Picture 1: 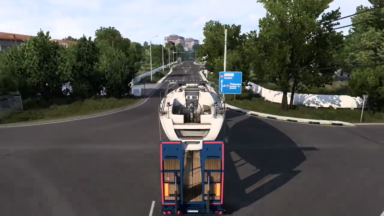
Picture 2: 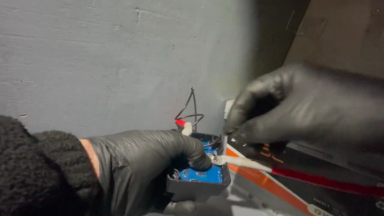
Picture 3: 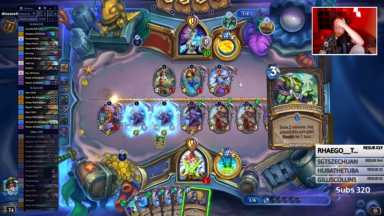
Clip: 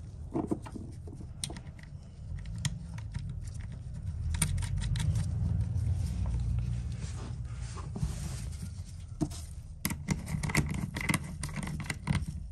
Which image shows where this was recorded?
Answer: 2